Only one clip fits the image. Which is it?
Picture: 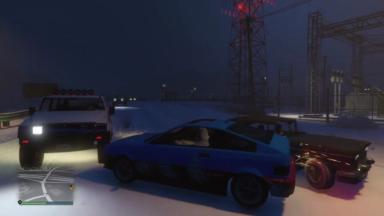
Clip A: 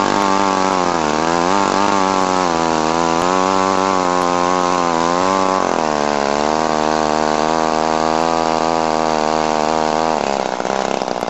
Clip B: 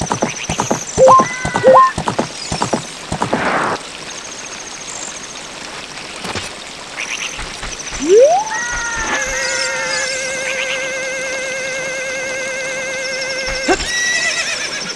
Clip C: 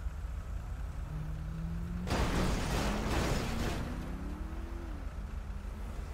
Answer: C